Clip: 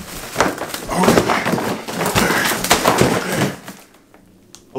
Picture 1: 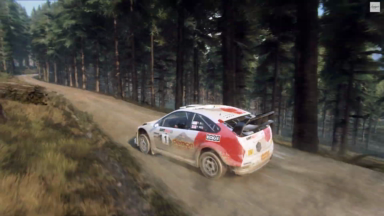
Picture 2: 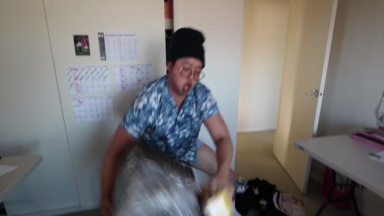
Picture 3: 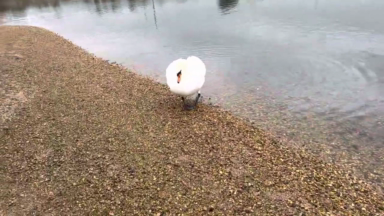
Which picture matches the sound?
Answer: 2